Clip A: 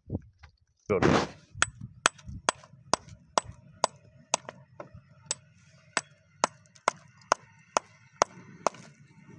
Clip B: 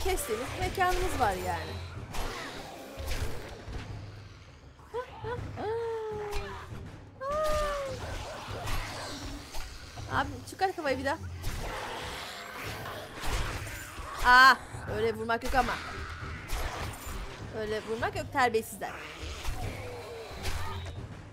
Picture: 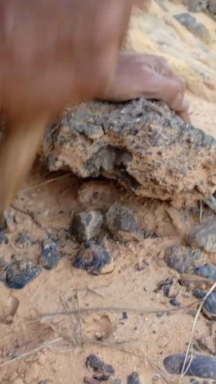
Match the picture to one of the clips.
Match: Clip A